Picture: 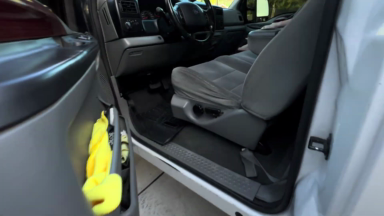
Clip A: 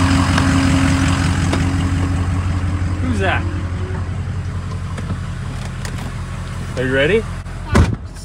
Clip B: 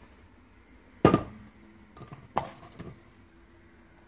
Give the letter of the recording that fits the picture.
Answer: A